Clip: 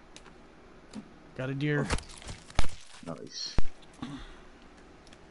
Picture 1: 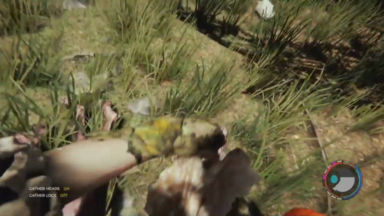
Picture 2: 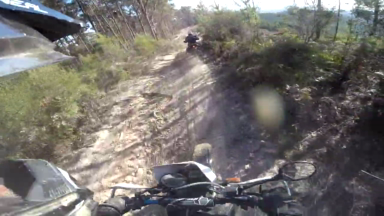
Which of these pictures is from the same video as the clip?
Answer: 1